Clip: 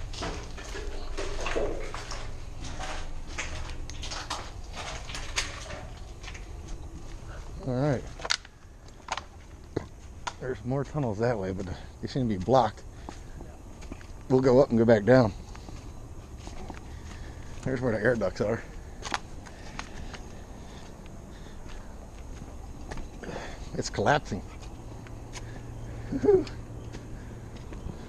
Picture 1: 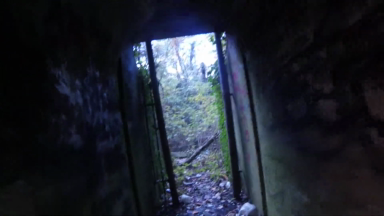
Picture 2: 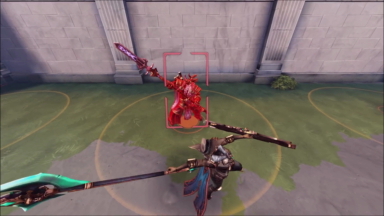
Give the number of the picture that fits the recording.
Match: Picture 1